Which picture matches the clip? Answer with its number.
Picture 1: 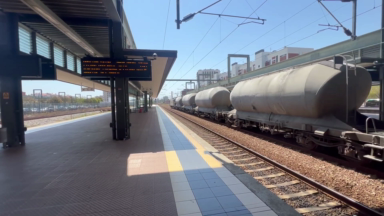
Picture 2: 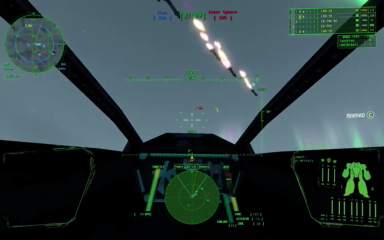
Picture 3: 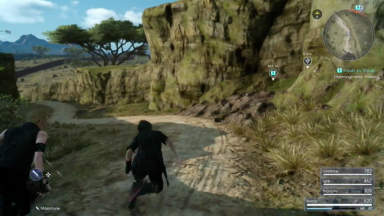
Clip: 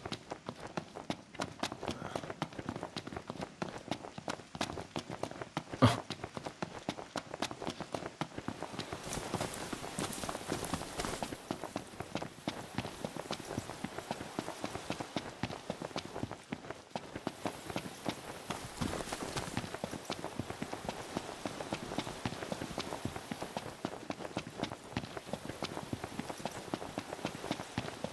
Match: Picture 3